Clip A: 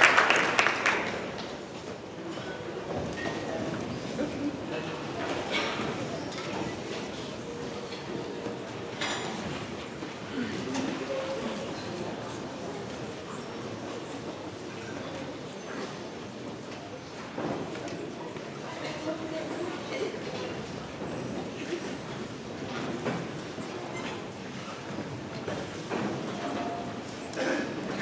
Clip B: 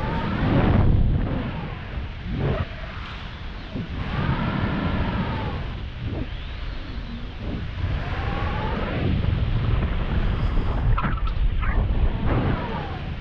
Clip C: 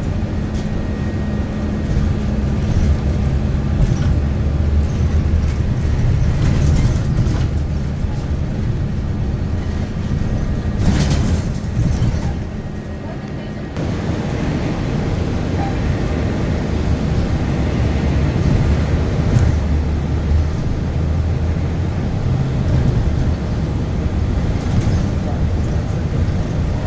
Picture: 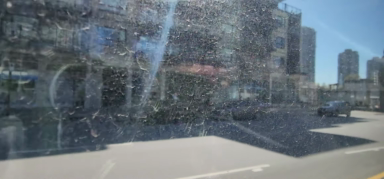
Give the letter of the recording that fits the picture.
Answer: C